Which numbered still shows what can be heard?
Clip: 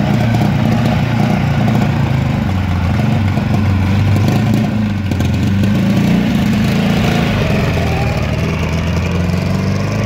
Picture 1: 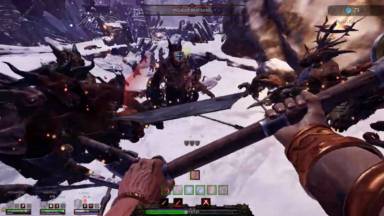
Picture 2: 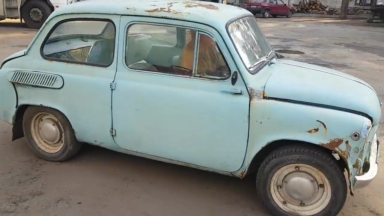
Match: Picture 2